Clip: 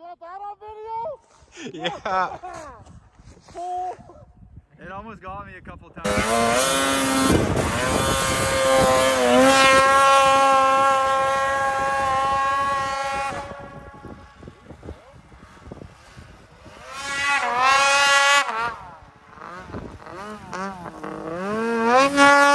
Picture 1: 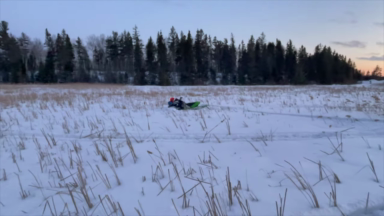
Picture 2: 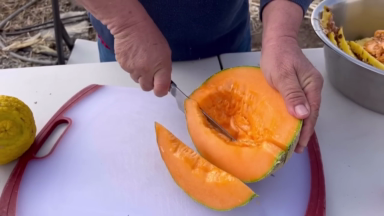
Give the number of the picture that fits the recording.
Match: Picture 1